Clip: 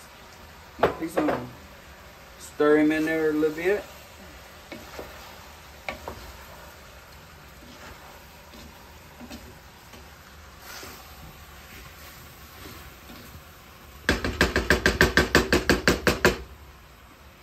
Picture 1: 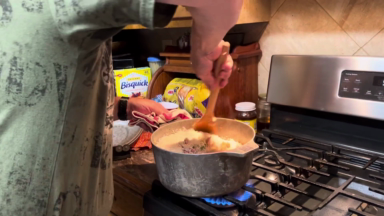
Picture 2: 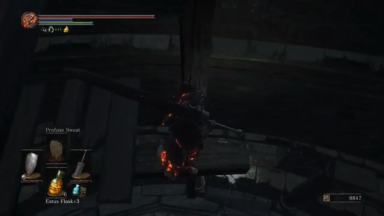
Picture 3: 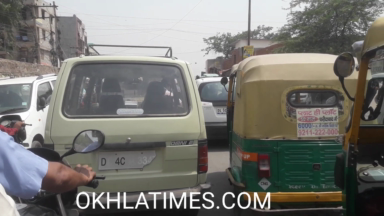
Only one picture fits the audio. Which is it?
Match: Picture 1